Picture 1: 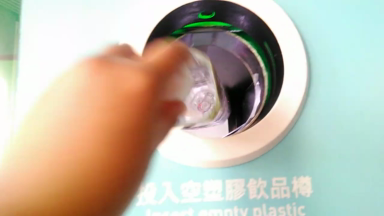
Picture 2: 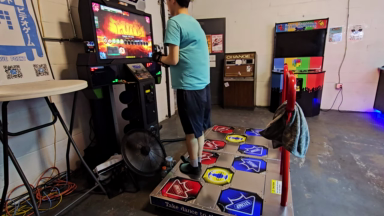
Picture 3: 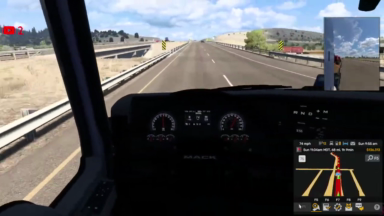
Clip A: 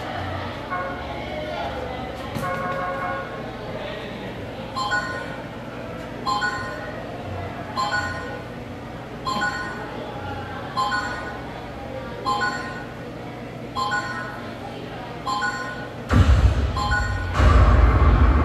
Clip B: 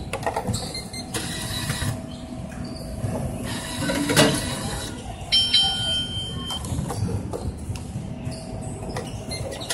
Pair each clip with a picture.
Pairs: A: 2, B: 1